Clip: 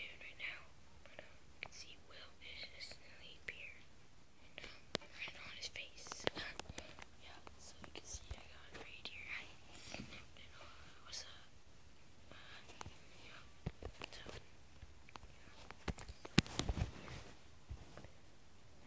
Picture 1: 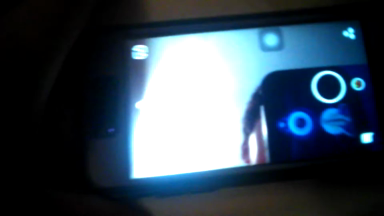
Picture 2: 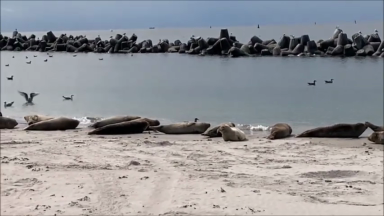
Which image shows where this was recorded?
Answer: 1